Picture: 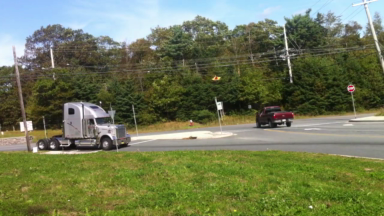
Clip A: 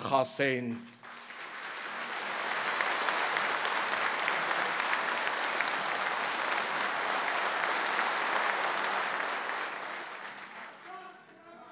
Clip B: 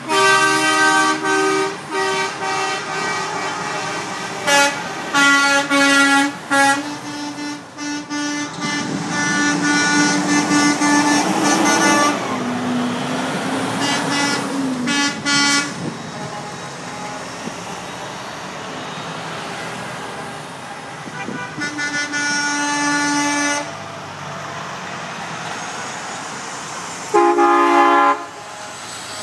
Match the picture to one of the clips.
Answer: B